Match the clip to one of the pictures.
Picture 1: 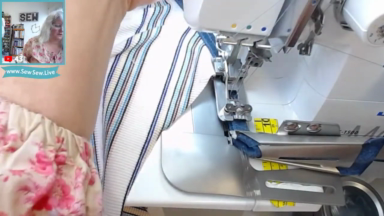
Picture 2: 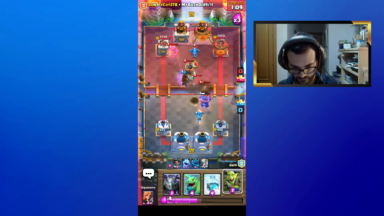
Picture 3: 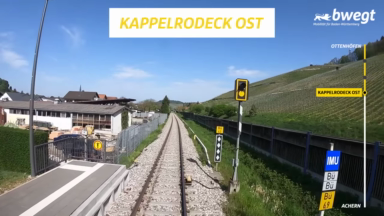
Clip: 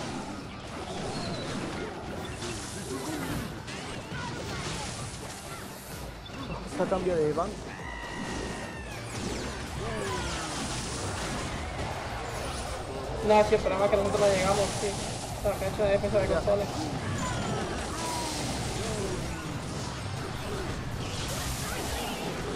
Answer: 2